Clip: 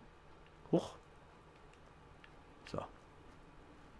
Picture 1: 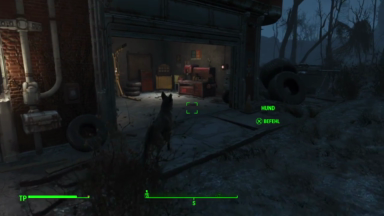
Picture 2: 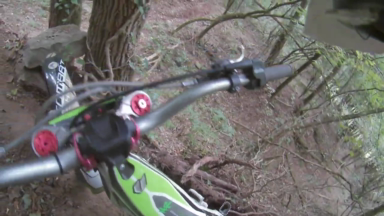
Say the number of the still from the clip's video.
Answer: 1